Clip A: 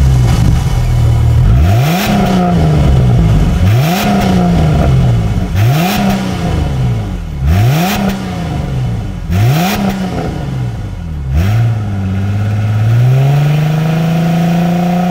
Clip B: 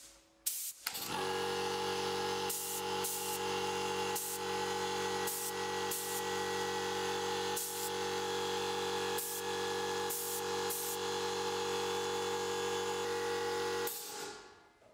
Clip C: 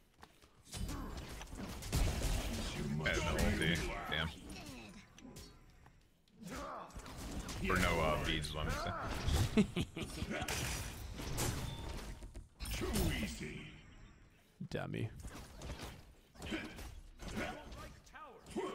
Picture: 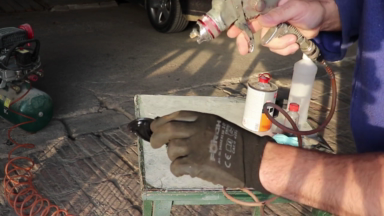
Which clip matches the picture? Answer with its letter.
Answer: B